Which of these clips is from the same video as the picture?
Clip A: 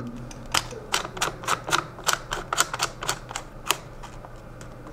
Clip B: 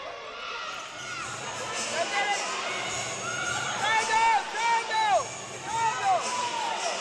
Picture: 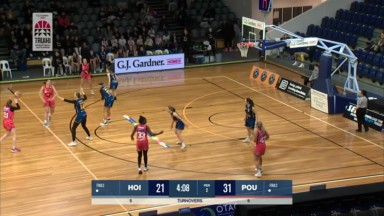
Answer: B